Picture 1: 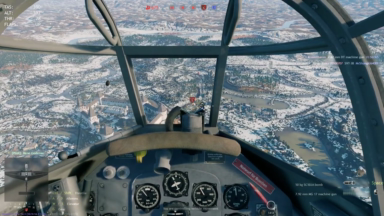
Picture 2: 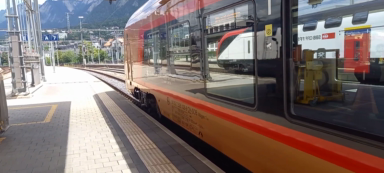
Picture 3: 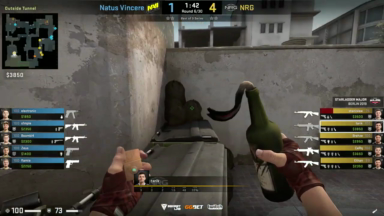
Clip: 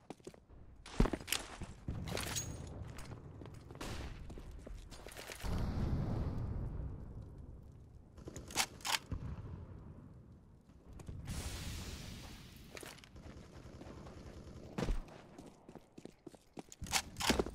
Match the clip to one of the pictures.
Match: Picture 3